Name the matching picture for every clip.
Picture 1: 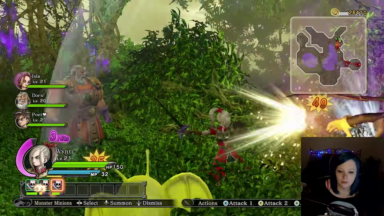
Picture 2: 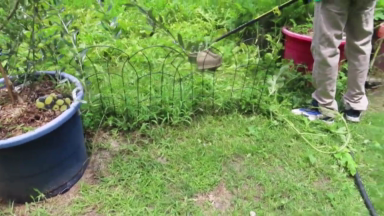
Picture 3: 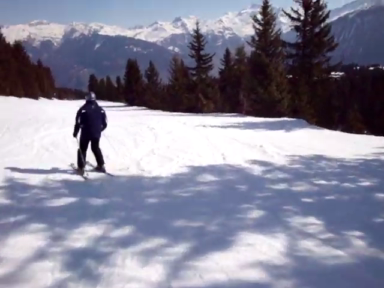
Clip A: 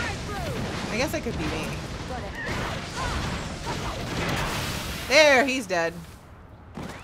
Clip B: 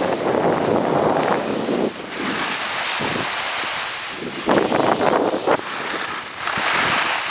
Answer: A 1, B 3